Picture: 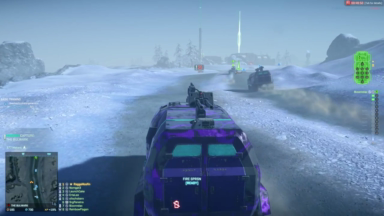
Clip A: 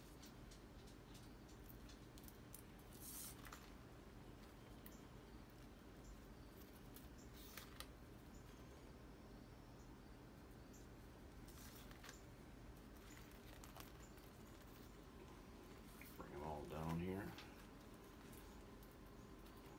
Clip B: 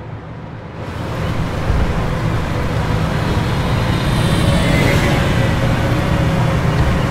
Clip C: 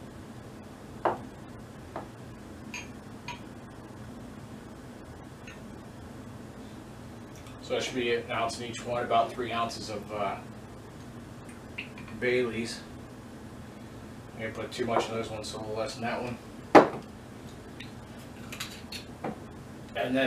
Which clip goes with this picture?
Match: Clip B